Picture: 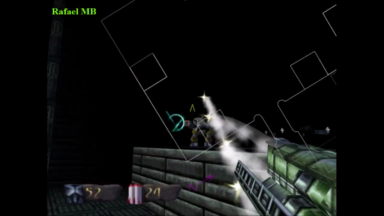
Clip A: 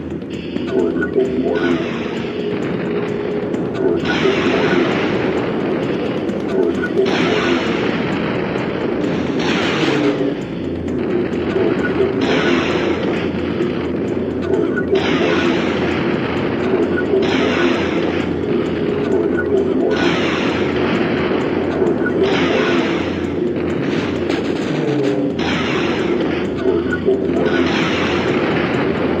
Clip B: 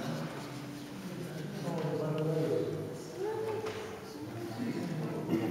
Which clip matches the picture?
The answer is A